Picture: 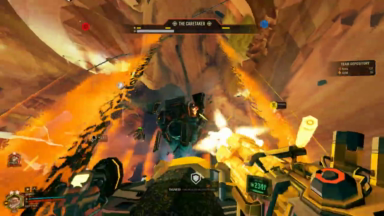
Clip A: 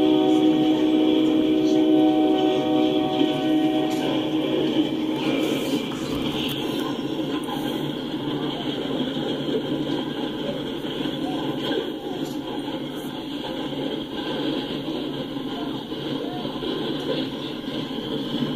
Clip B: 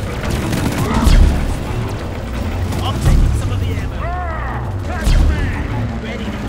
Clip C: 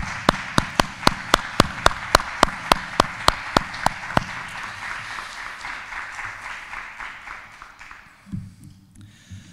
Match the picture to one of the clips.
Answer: B